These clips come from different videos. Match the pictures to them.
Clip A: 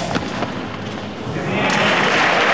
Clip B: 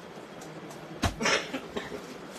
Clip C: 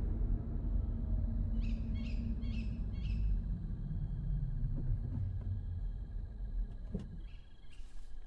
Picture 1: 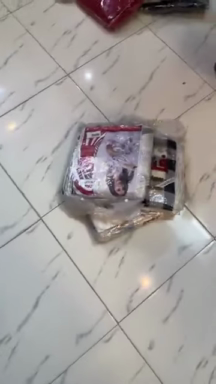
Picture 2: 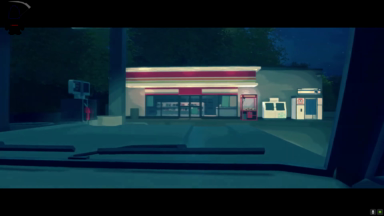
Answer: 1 B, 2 C